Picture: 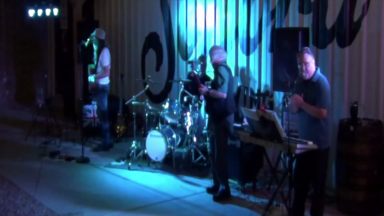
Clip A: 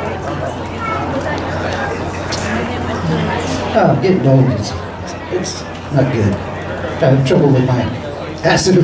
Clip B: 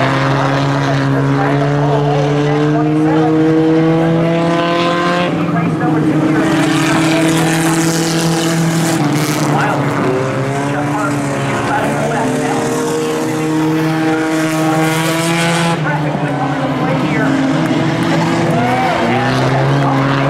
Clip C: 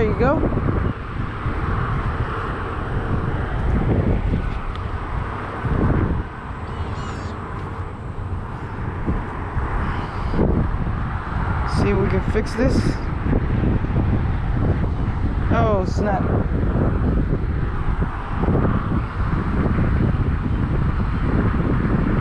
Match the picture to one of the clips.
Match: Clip A